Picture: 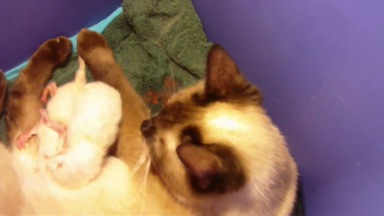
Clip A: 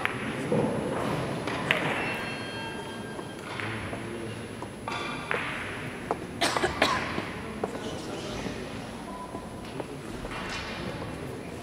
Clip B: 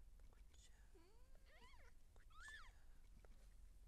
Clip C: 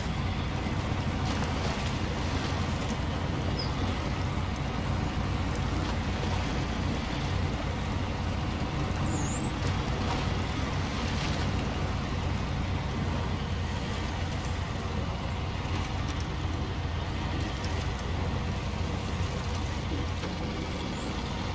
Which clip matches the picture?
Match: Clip B